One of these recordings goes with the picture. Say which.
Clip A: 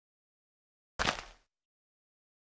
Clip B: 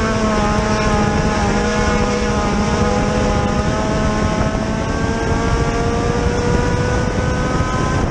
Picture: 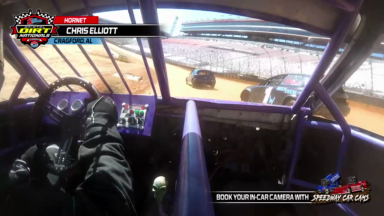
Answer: B